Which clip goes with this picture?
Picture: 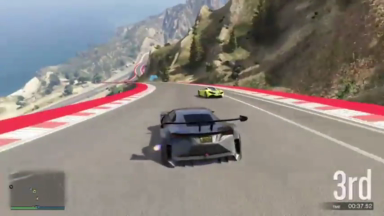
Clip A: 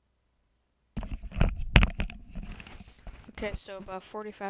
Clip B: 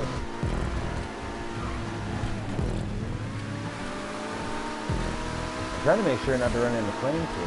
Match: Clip B